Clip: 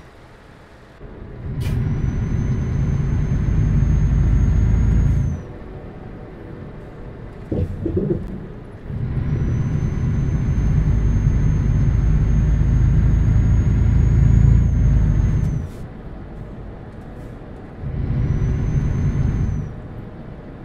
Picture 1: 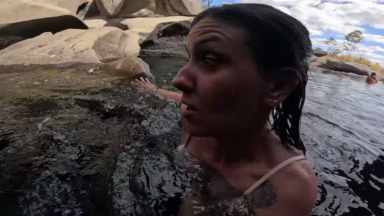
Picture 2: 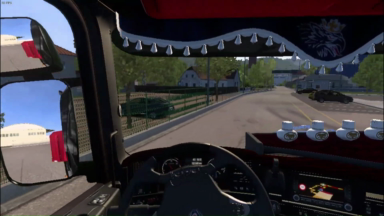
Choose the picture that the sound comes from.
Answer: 2